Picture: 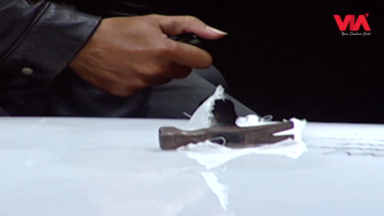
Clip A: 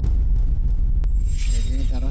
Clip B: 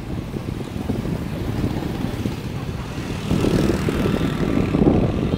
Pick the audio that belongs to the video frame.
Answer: A